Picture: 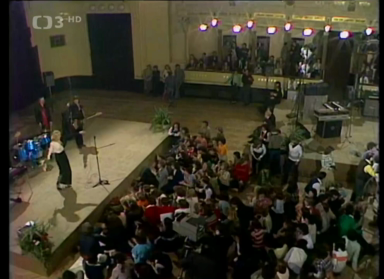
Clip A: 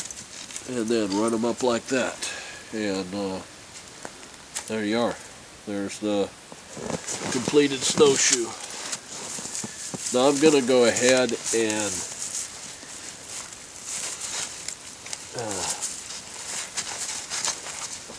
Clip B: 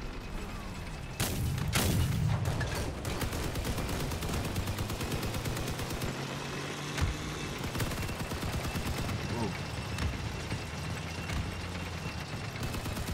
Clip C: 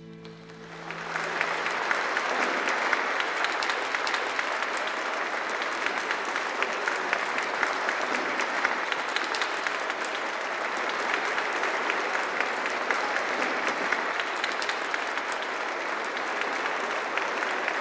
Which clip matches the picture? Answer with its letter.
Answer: C